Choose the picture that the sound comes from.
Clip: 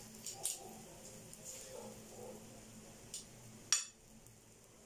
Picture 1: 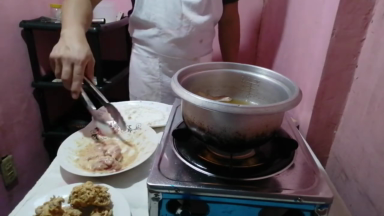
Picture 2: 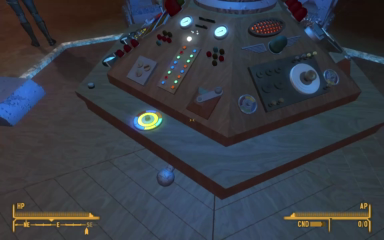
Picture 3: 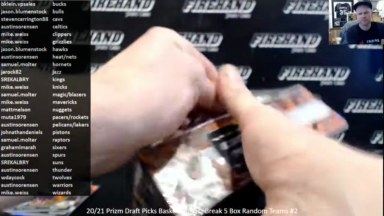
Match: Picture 1